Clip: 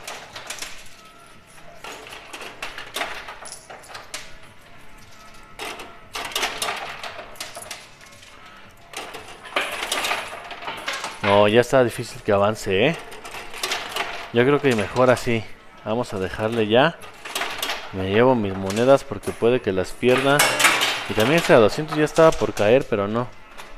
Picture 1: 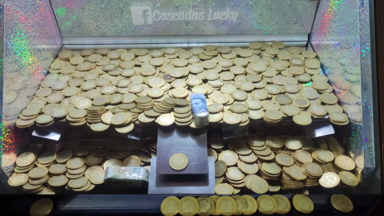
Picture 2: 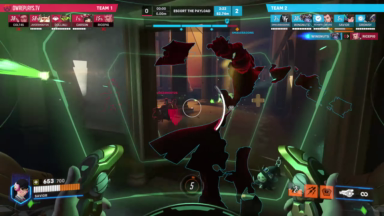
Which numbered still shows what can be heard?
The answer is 1